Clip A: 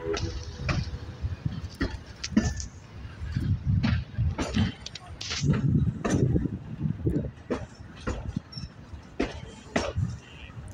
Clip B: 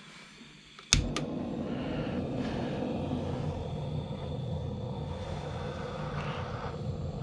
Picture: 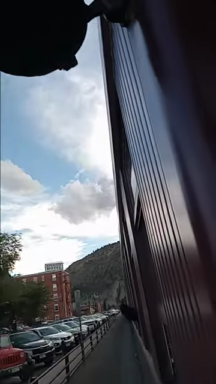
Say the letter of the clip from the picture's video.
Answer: A